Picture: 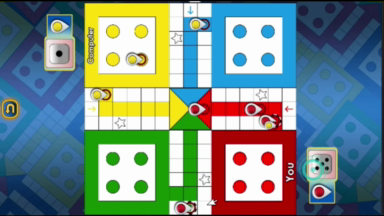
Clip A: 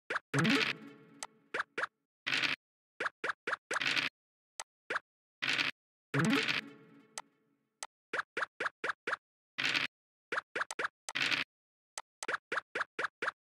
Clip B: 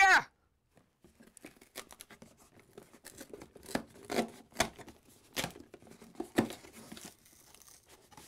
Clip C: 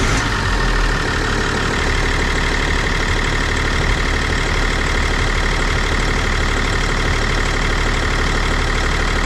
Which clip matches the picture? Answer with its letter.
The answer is A